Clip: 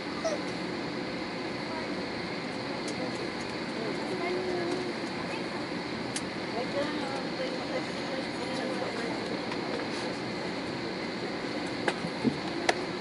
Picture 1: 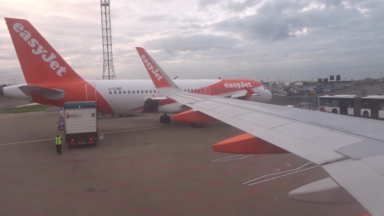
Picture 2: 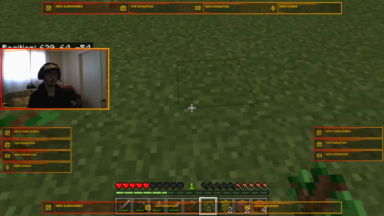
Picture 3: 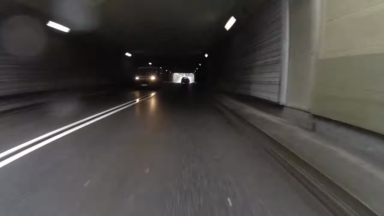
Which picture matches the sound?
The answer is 1